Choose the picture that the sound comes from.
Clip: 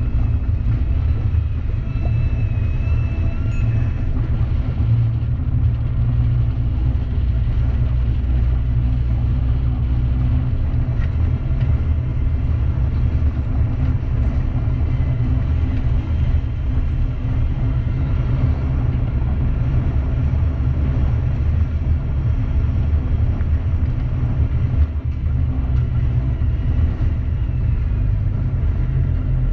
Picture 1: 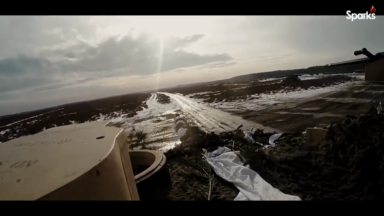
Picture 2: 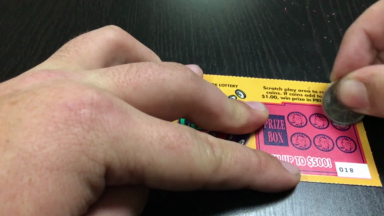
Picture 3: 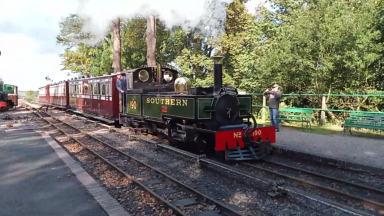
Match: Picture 1